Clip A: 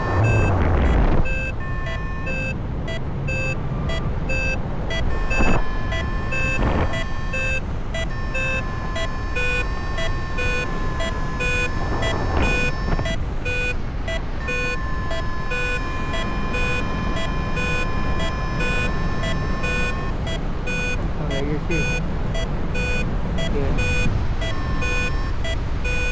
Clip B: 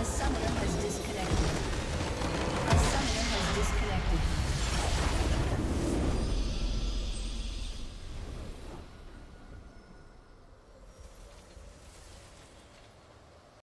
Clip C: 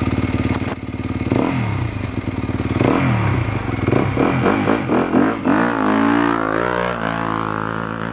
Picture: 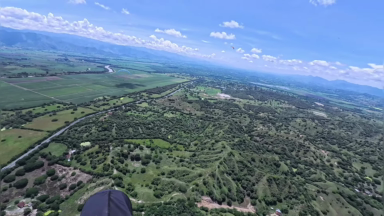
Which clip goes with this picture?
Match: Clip A